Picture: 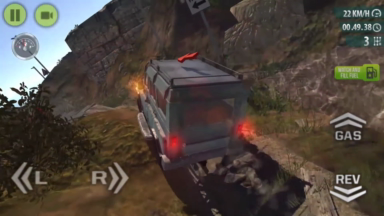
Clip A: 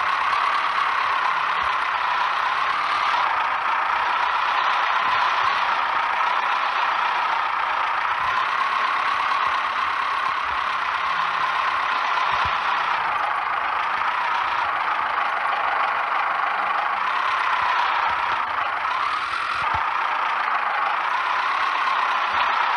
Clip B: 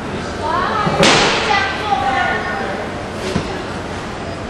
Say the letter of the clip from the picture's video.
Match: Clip A